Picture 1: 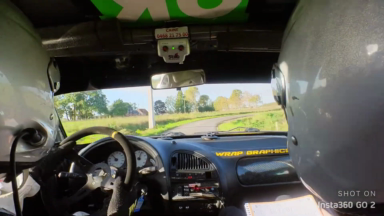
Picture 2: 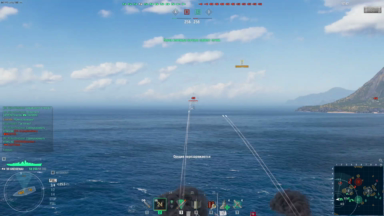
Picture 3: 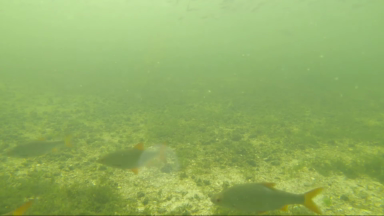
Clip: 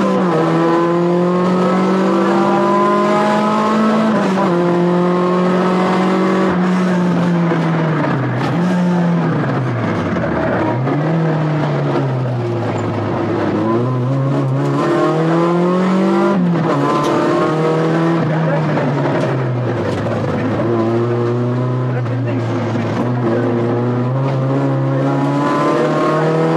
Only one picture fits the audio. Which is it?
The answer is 1